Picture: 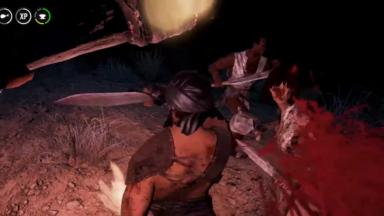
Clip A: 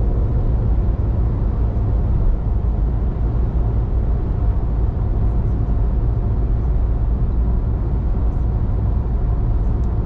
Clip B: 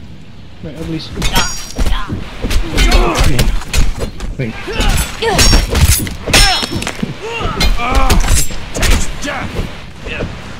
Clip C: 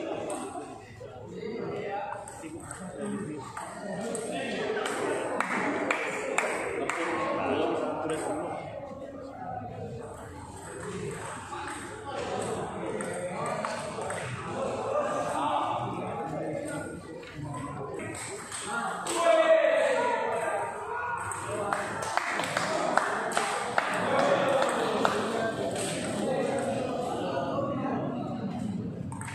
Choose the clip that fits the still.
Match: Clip B